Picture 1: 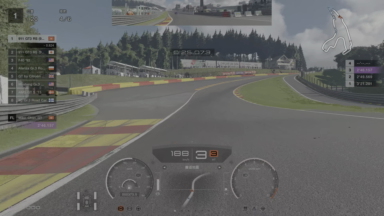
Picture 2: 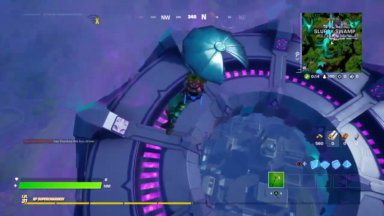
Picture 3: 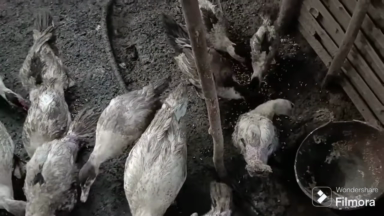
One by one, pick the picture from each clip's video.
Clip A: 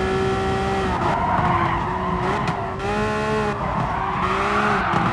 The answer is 1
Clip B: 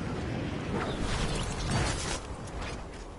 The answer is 2